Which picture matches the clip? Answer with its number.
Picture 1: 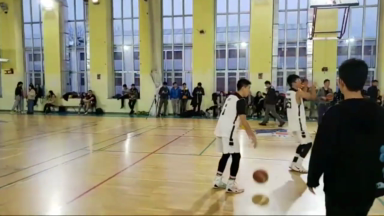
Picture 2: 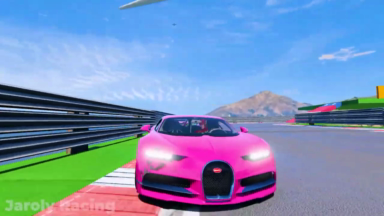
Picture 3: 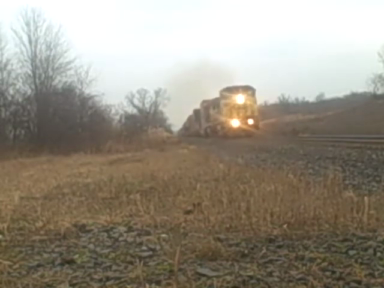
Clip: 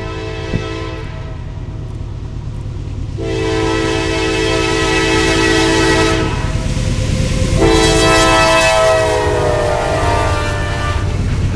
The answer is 3